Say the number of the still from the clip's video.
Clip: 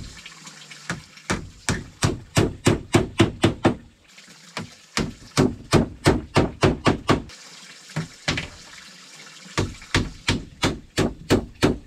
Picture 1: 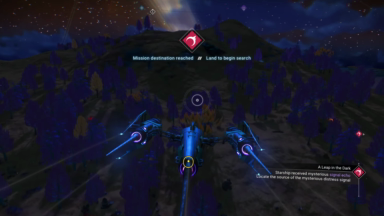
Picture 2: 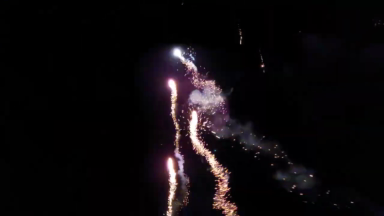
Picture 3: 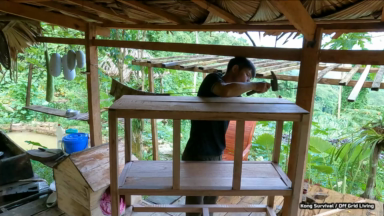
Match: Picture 3